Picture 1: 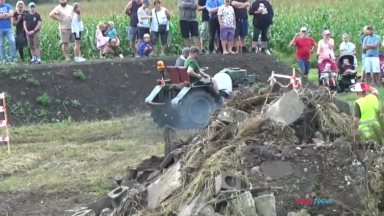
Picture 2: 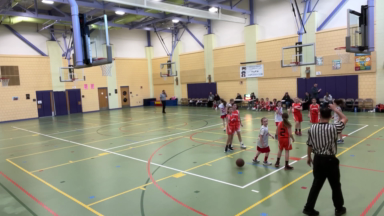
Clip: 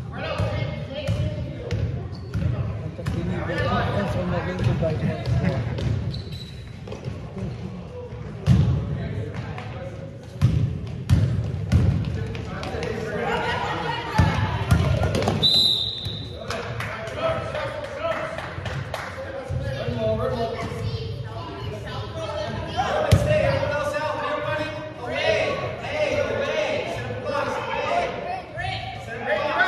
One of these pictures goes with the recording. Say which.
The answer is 2